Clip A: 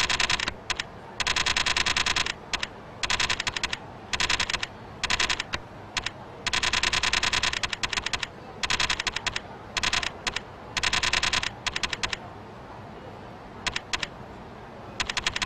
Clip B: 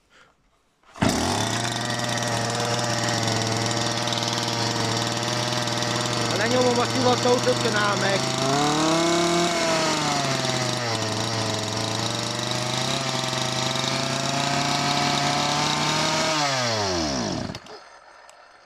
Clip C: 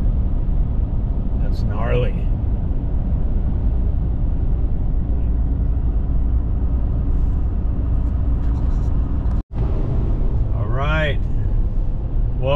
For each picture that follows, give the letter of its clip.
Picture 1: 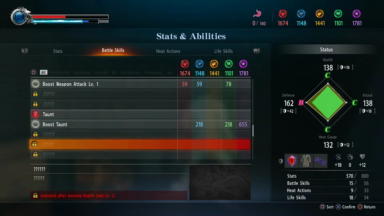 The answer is A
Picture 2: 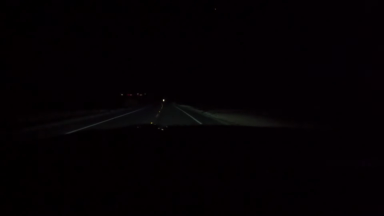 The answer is C